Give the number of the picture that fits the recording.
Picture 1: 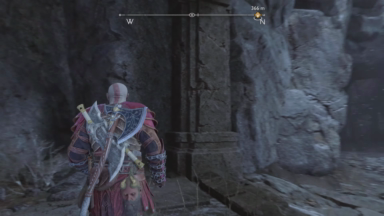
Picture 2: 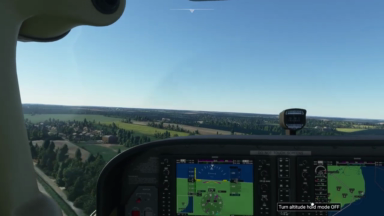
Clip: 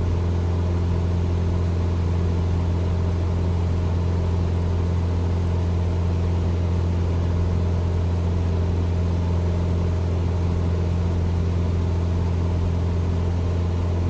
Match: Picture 2